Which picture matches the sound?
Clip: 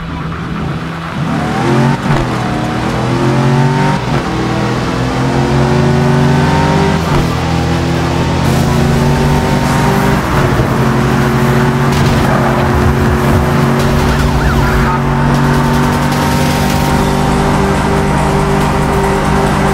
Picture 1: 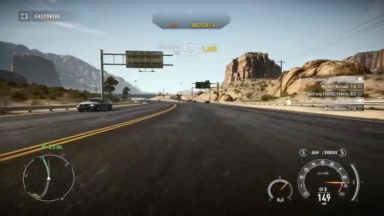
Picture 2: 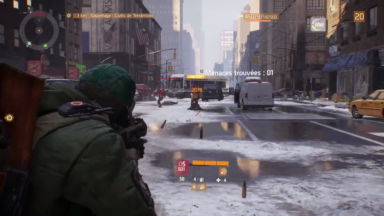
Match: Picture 1